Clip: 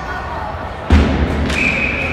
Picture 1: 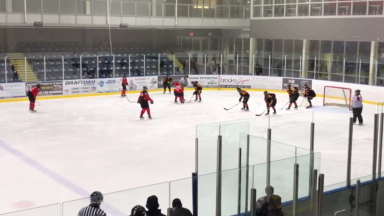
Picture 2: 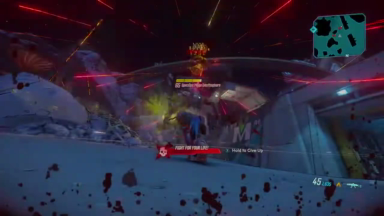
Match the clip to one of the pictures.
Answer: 1